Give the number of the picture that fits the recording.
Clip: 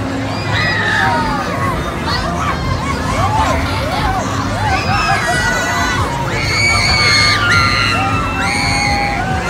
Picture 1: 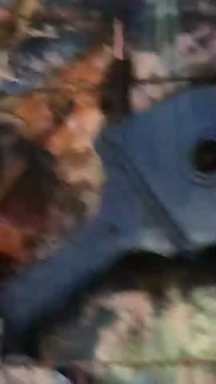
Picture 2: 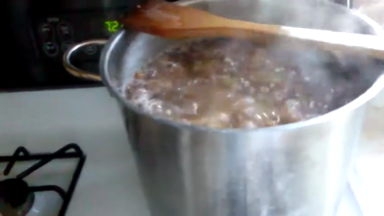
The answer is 1